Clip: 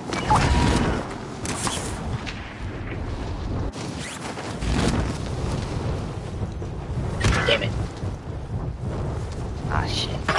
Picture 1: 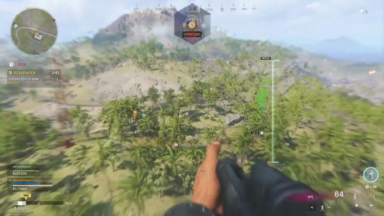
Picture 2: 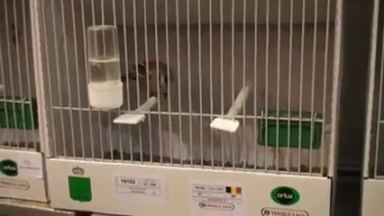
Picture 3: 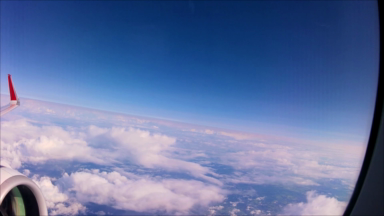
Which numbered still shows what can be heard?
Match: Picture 1